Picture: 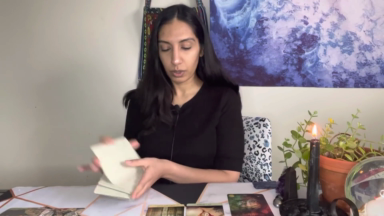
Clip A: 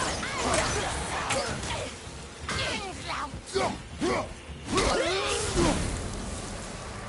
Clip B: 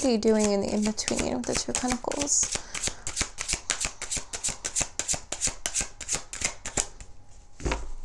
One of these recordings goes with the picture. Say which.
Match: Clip B